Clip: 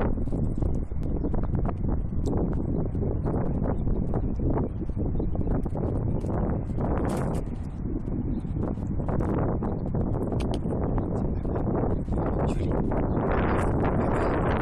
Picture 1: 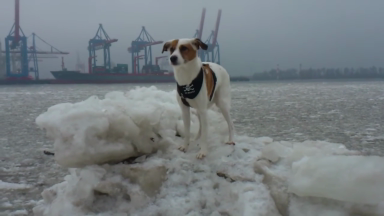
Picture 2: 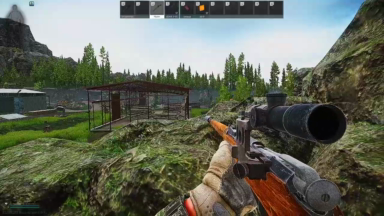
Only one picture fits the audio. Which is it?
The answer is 1